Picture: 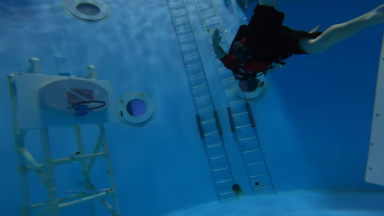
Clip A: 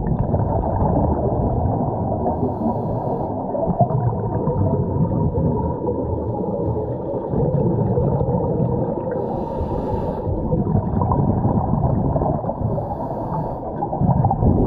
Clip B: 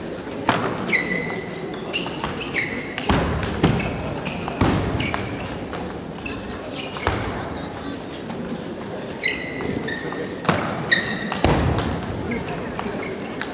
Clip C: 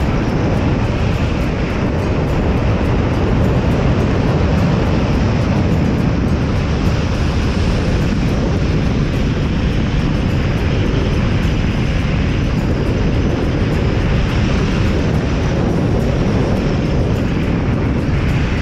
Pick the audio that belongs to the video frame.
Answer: A